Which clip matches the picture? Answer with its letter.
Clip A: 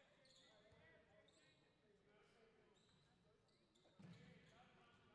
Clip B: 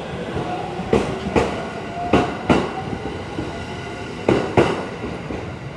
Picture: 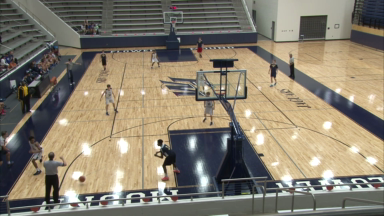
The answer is A